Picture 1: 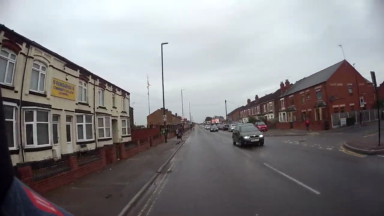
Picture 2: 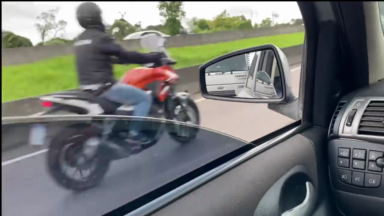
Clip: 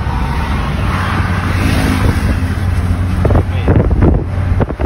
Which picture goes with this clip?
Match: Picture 2